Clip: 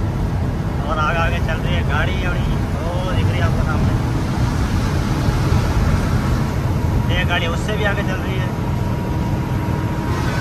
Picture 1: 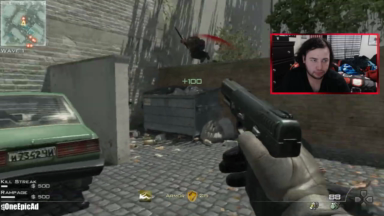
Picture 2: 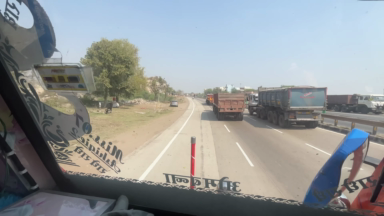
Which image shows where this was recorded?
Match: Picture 2